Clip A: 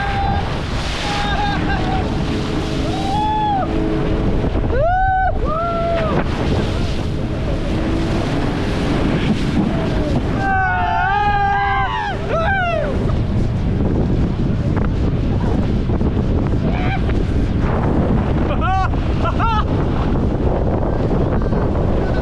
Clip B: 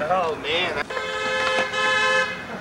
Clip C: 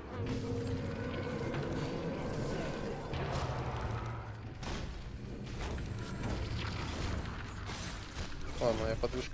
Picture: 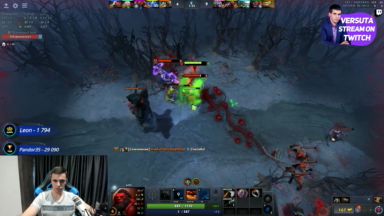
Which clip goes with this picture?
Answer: C